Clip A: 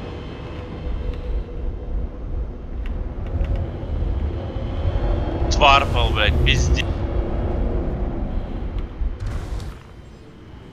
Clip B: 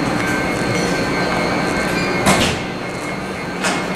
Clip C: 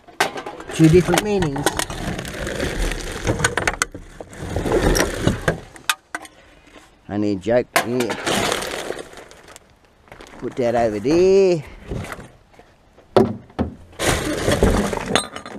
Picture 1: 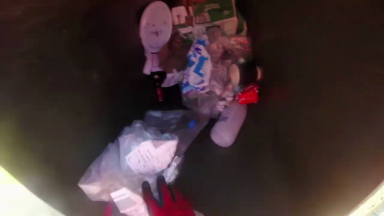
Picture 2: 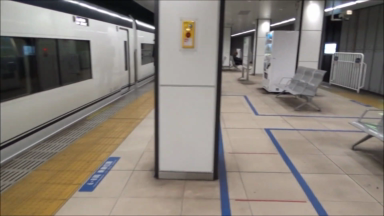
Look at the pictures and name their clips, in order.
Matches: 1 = C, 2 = B